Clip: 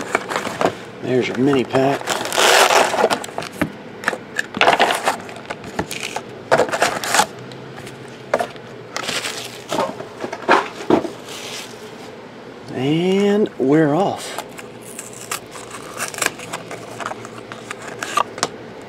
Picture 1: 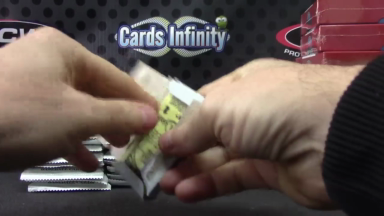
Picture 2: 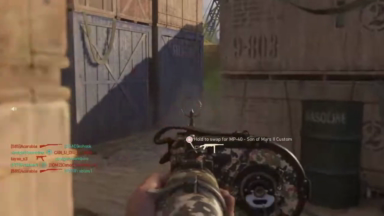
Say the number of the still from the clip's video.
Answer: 1